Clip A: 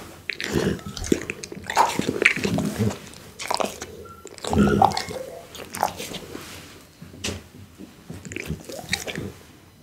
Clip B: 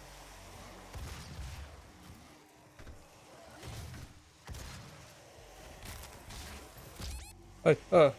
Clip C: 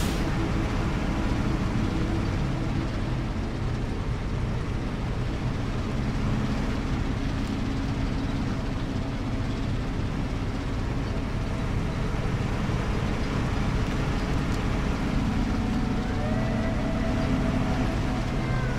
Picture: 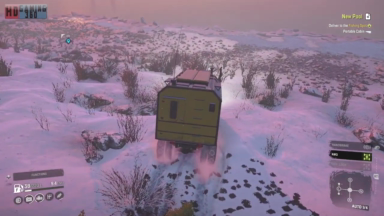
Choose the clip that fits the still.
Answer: C